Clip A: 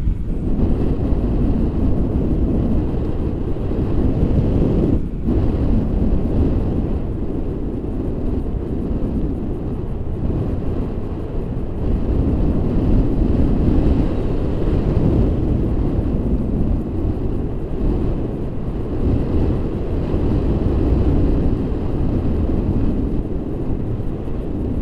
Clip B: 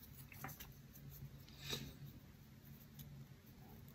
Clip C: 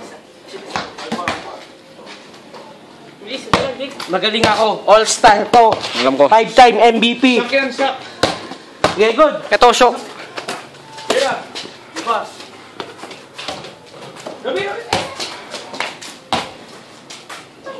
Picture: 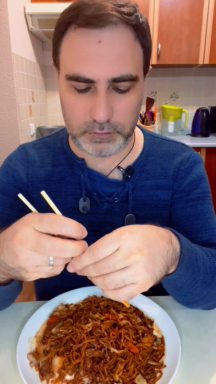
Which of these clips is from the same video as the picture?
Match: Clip B